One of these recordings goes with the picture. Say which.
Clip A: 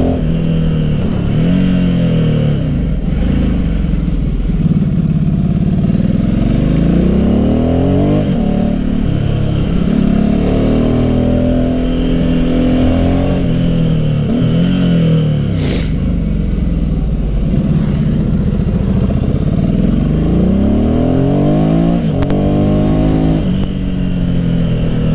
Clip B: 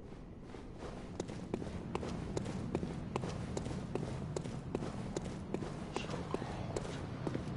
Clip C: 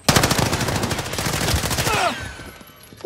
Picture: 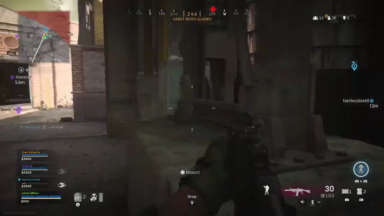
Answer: C